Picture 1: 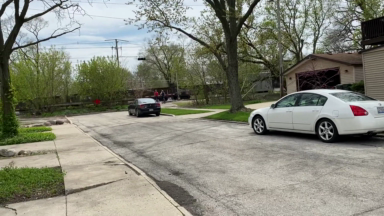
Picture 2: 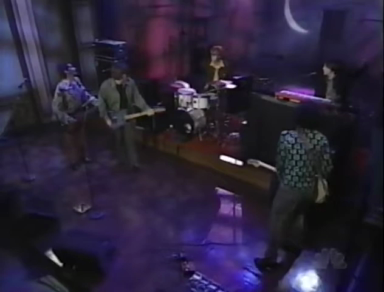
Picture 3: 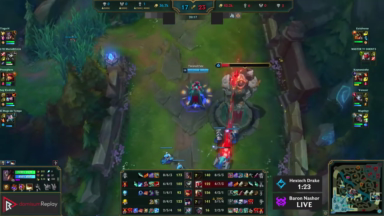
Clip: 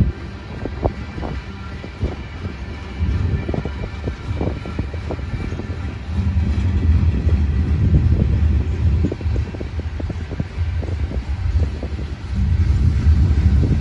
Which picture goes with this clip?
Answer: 1